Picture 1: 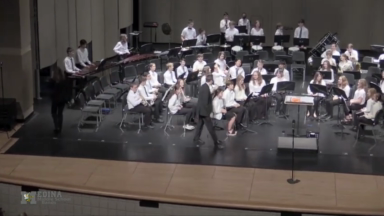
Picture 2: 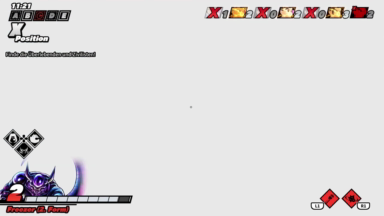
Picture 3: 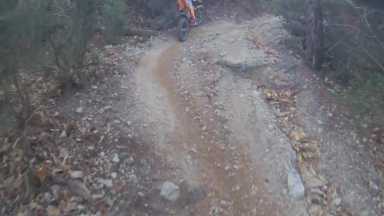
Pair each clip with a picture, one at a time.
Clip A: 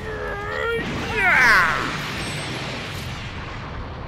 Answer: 2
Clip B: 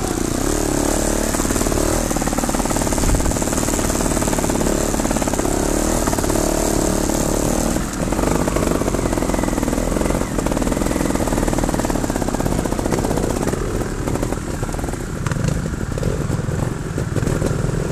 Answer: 3